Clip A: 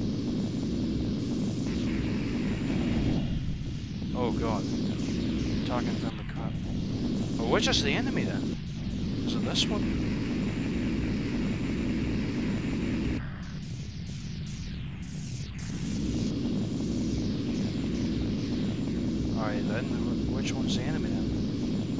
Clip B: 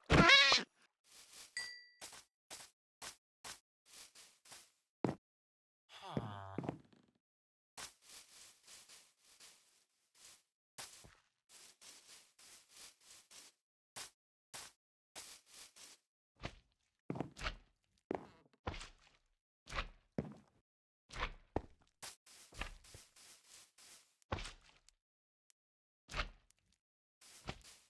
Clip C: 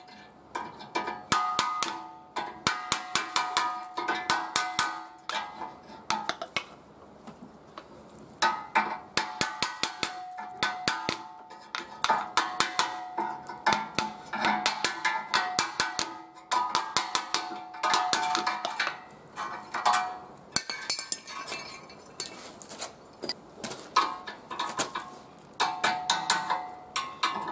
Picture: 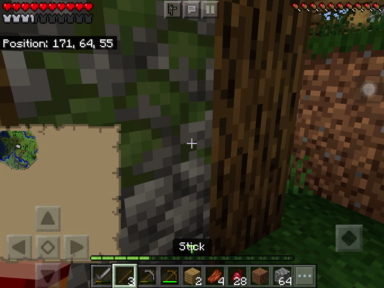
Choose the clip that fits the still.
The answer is B